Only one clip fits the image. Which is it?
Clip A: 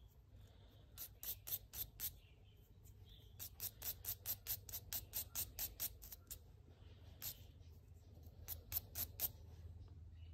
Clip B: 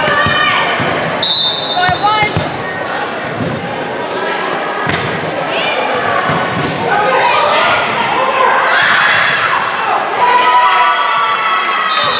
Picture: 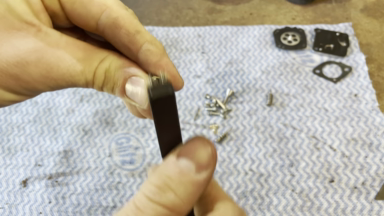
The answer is A